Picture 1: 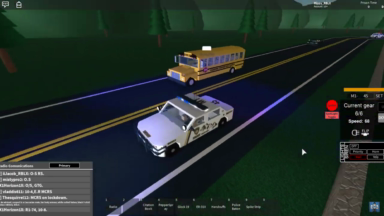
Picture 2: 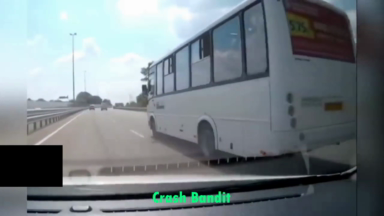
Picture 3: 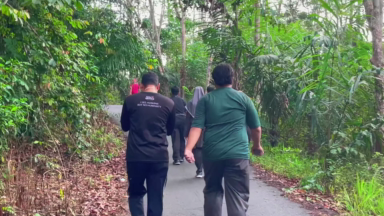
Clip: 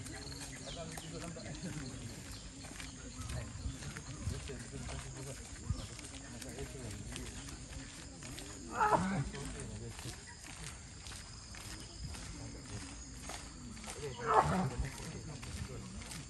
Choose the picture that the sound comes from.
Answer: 3